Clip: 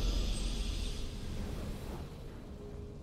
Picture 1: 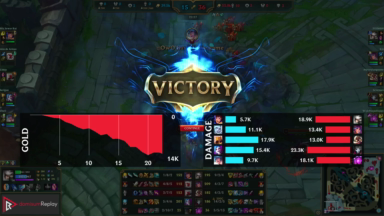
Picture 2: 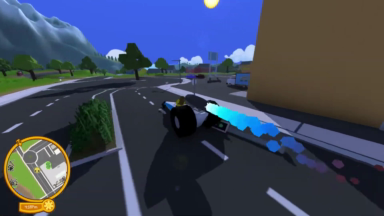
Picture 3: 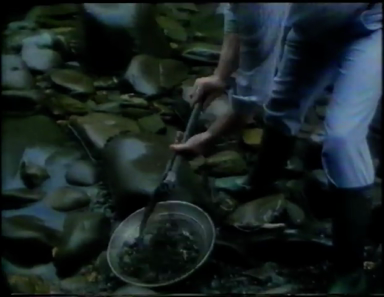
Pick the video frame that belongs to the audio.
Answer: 1